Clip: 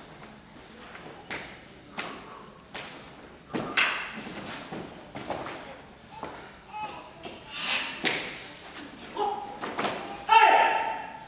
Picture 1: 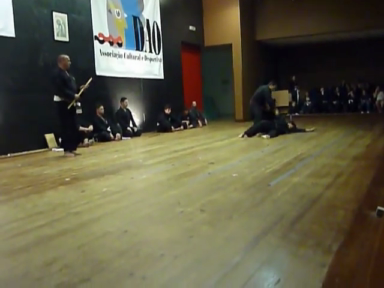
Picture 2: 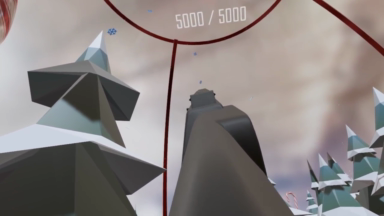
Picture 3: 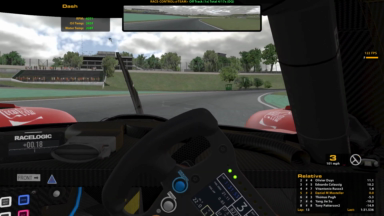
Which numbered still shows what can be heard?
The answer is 1